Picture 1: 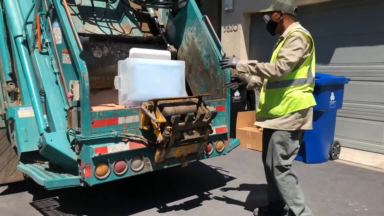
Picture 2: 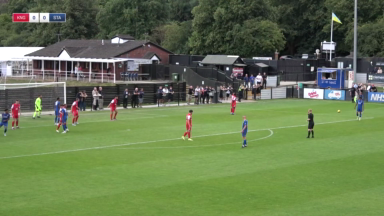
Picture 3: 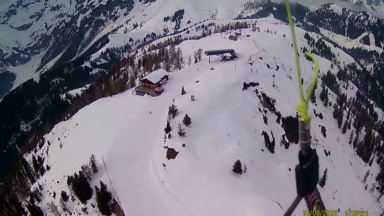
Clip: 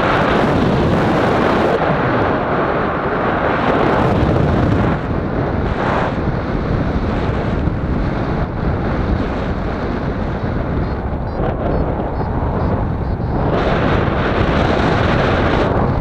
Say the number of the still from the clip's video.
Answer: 3